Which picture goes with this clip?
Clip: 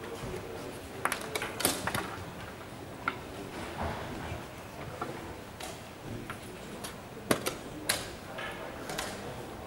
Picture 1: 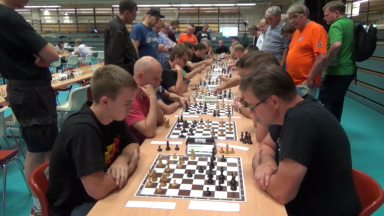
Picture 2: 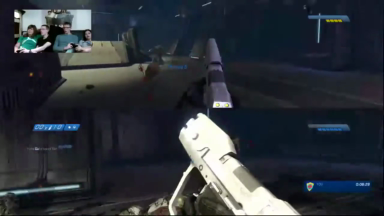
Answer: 1